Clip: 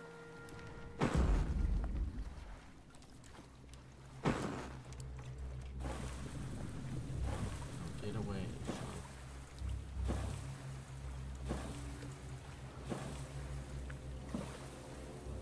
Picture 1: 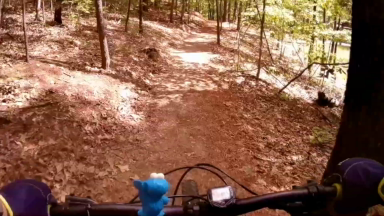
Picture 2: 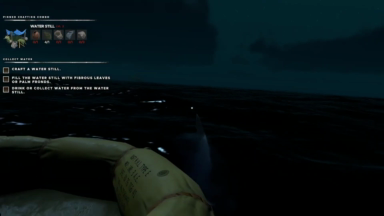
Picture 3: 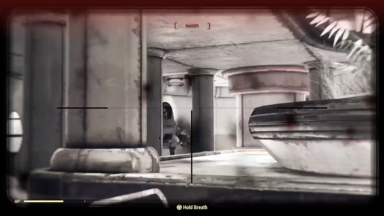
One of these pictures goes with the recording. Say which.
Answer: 2